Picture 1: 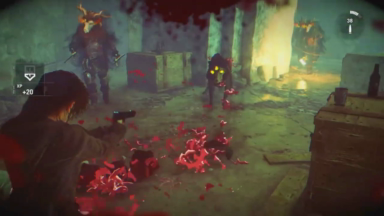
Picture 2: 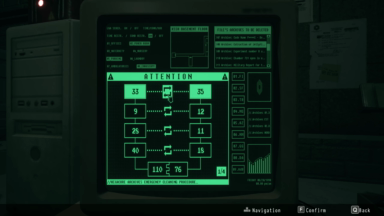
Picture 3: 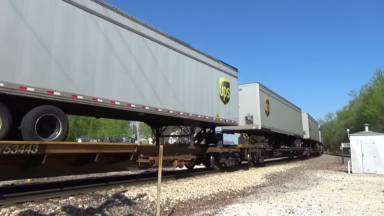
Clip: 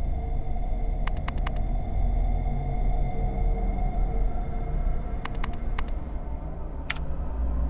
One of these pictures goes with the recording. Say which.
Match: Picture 2